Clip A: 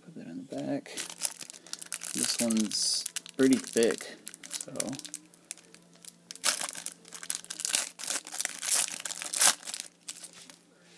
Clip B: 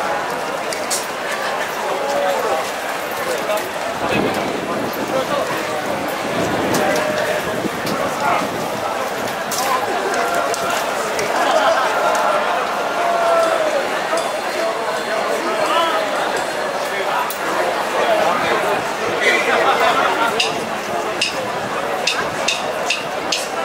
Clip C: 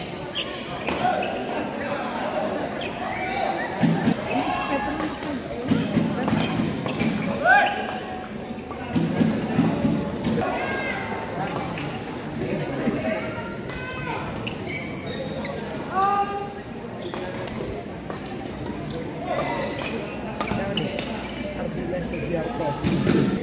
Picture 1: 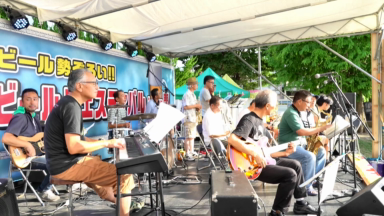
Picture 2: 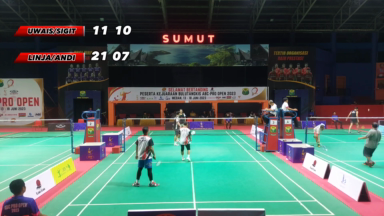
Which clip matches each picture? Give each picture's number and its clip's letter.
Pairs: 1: B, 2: C